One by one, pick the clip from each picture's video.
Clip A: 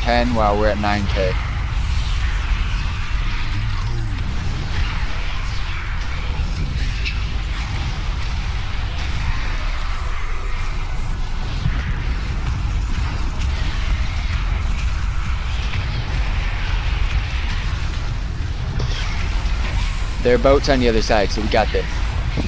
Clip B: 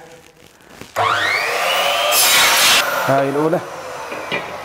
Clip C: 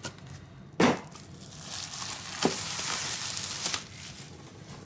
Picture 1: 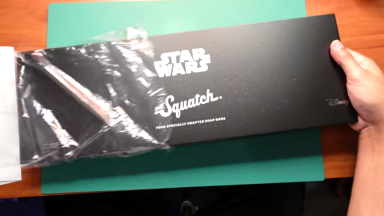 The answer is C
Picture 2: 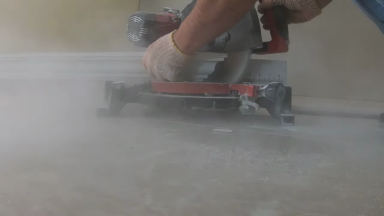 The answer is B